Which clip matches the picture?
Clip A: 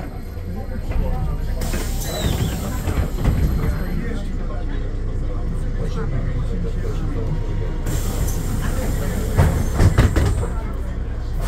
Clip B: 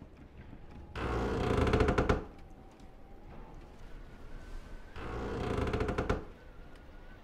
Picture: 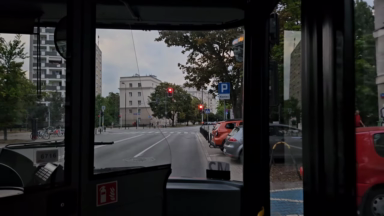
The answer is A